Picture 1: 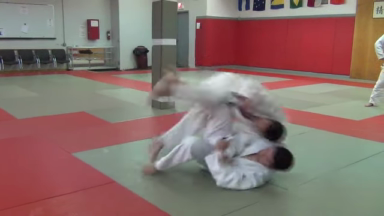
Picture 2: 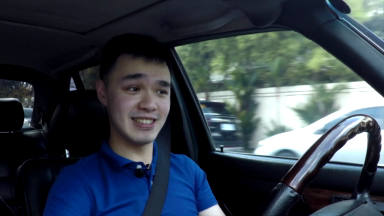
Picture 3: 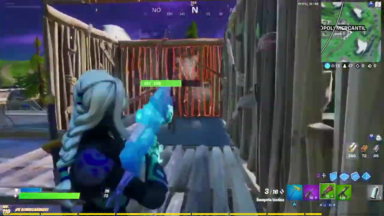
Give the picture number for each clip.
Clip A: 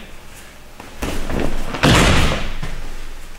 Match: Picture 1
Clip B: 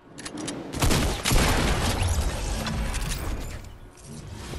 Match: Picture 3